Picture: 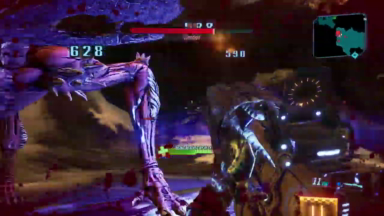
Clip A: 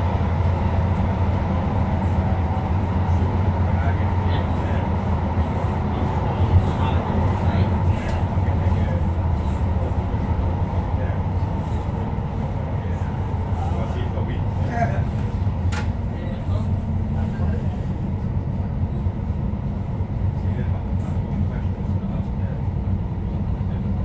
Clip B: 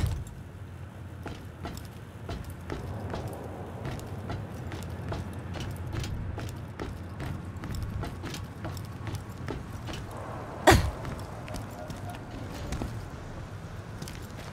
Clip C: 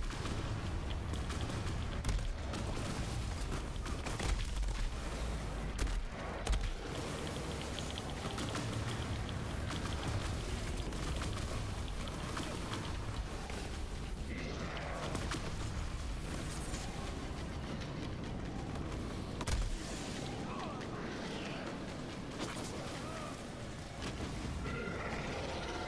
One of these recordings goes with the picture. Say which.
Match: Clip C